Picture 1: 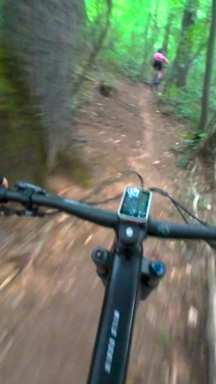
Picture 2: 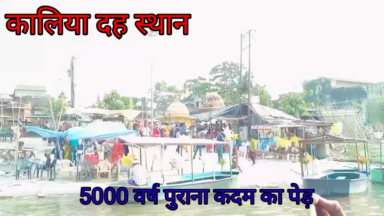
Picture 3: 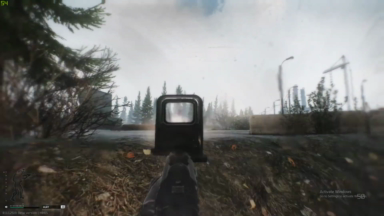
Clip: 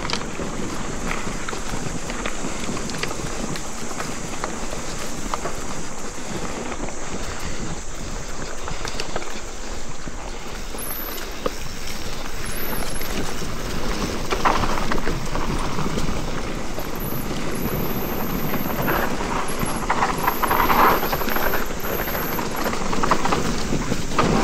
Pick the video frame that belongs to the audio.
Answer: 1